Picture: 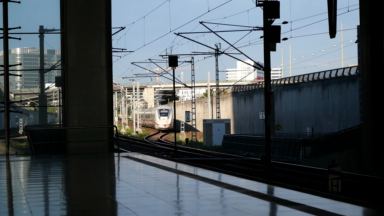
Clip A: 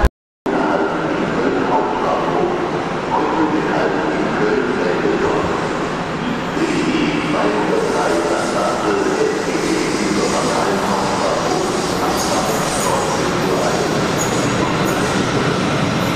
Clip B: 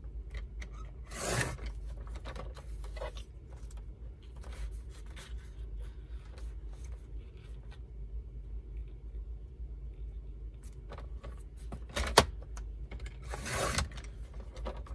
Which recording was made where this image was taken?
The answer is A